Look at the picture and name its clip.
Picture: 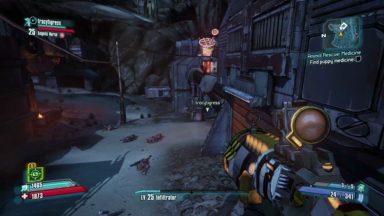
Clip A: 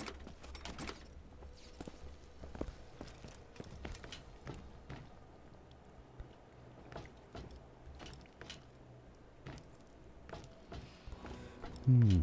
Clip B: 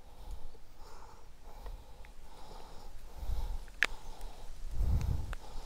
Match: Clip A